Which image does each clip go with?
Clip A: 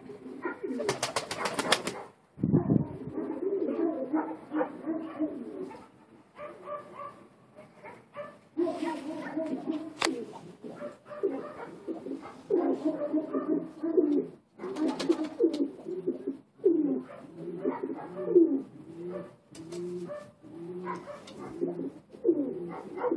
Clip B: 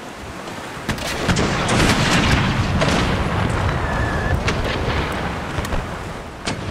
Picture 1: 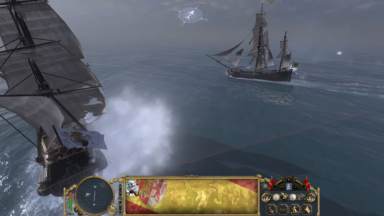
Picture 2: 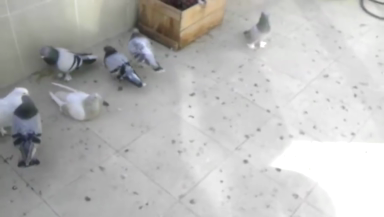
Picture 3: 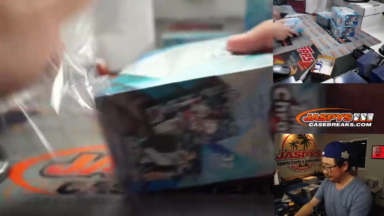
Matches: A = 2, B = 1